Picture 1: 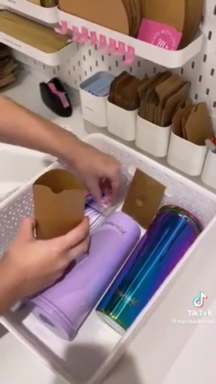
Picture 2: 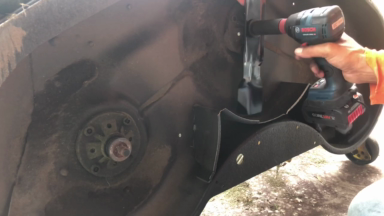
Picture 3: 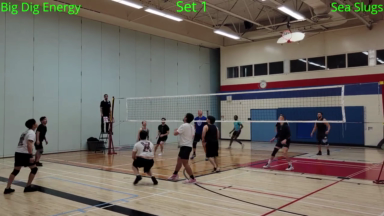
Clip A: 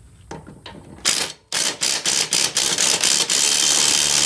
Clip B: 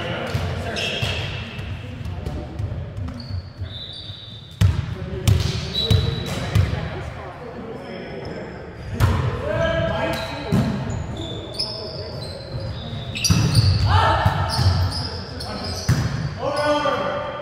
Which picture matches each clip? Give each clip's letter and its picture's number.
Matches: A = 2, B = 3